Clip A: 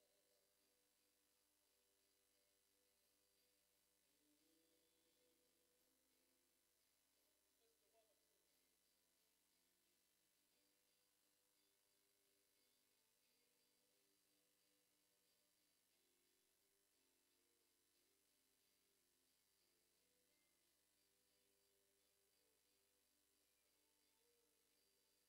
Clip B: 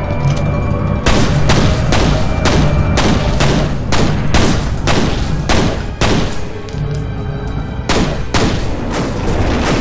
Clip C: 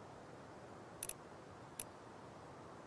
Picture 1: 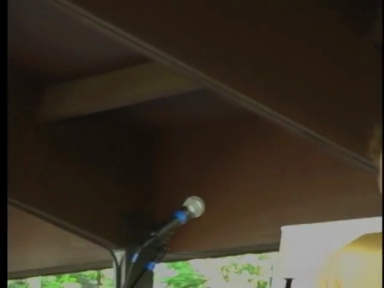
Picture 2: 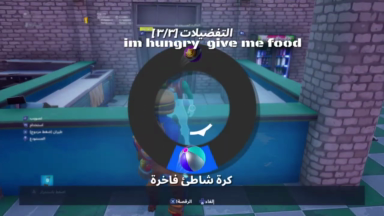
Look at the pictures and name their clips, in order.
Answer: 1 A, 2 C